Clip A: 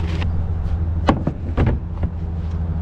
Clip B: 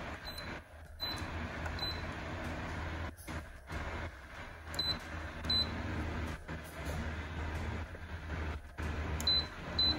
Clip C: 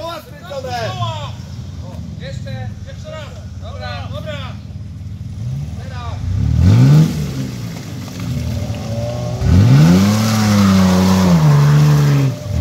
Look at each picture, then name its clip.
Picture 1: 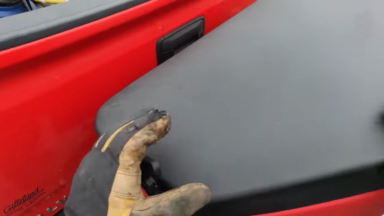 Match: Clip A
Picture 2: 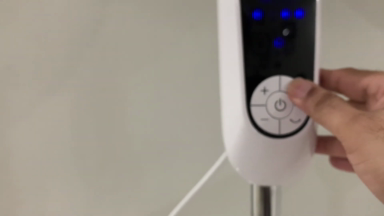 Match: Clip B